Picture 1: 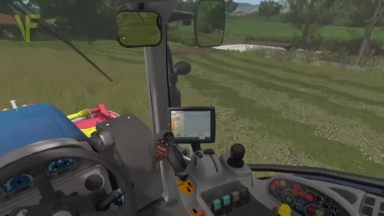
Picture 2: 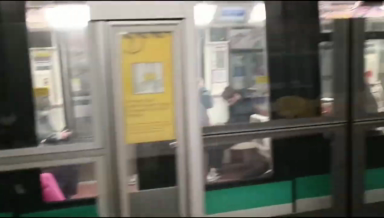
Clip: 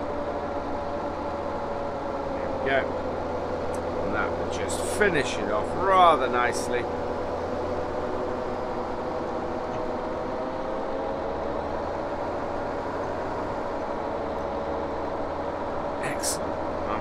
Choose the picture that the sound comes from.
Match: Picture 1